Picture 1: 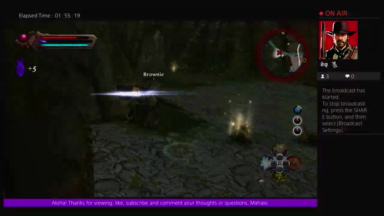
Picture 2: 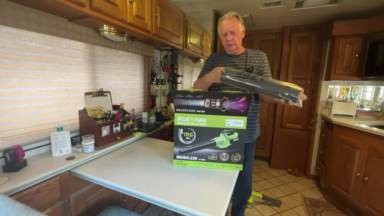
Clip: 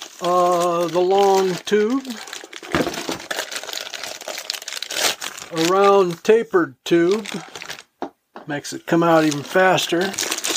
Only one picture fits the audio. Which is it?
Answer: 2